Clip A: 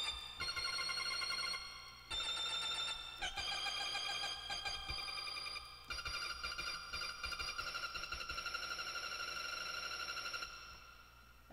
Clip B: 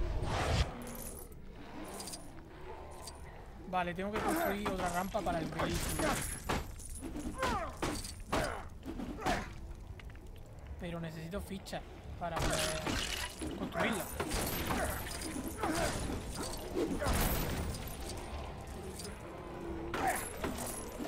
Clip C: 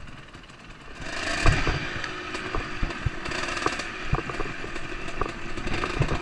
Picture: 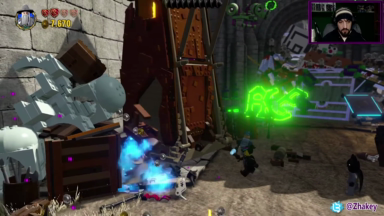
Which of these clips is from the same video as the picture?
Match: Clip B